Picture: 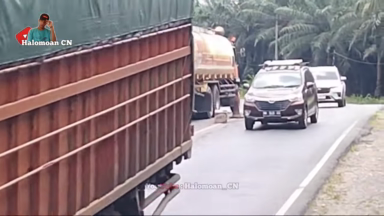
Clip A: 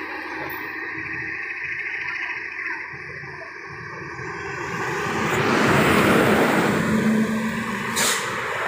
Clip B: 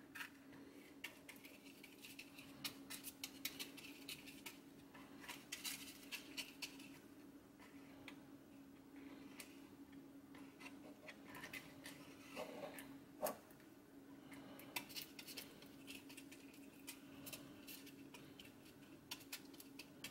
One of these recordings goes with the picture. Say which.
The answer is A